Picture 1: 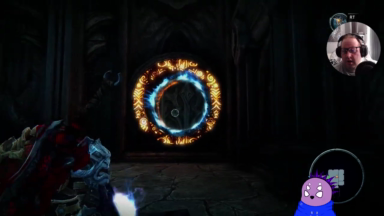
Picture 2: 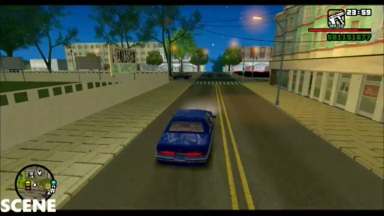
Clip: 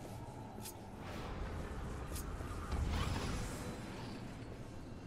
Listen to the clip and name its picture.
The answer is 1